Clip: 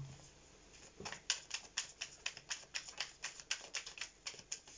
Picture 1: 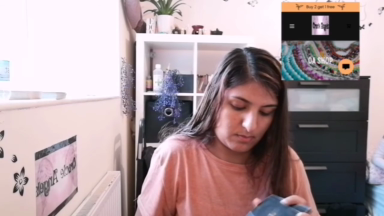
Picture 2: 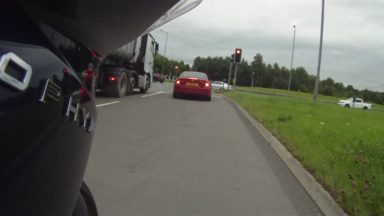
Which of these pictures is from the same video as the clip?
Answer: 1